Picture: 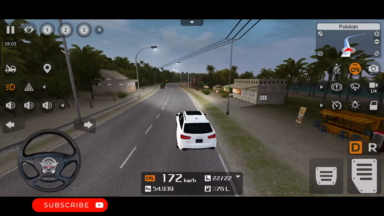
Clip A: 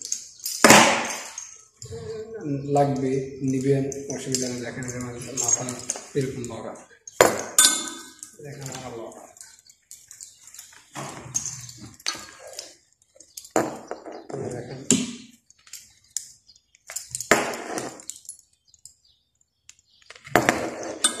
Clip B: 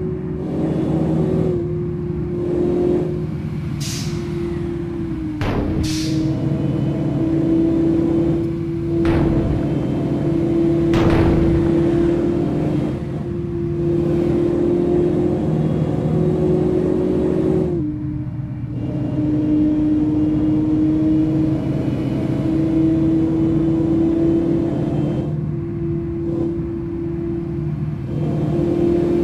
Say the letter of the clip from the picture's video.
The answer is B